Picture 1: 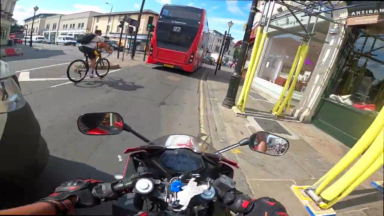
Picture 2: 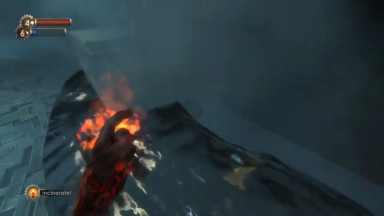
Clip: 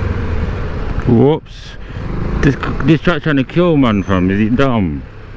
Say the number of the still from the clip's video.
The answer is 1